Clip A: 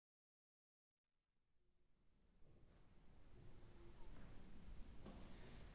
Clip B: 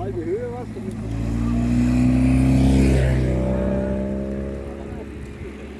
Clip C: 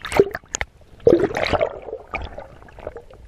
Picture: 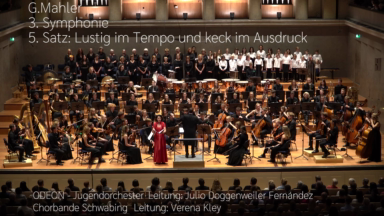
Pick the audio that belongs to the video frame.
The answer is A